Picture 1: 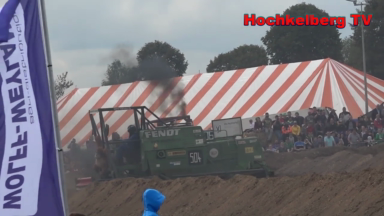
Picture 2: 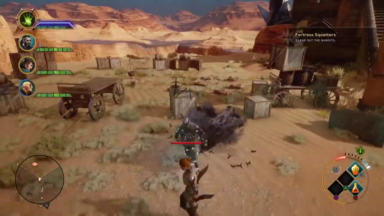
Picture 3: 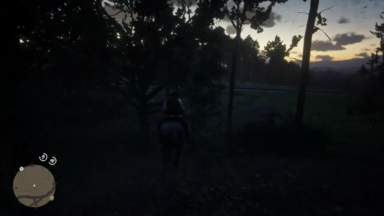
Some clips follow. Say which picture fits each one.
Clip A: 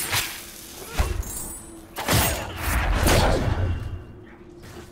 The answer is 2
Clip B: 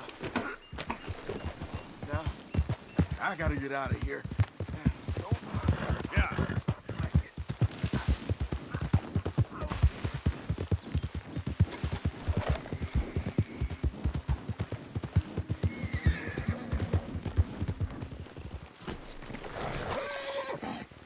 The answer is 3